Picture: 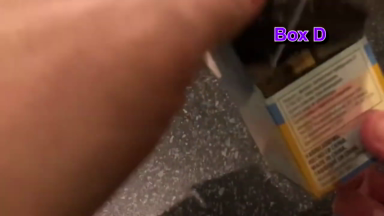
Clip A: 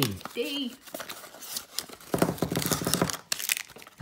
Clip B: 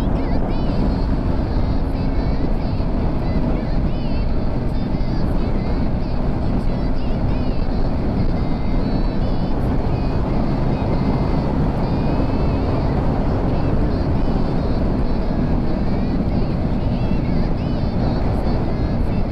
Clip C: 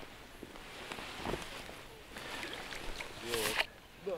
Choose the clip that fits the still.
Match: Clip A